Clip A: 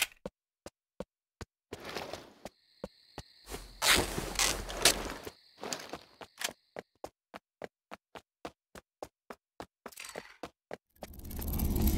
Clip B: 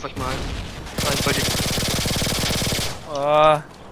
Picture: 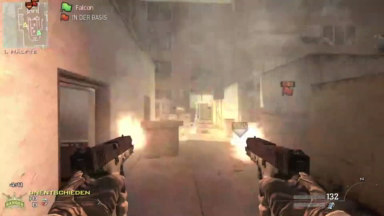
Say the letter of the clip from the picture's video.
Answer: B